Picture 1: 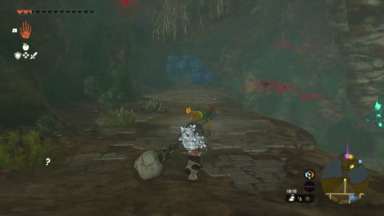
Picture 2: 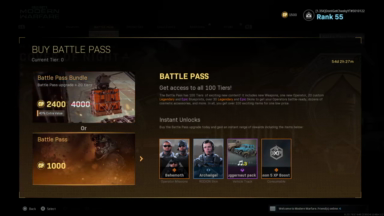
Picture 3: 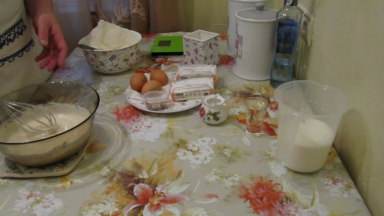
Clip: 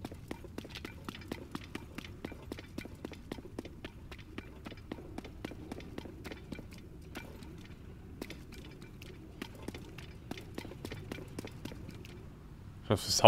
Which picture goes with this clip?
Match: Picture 1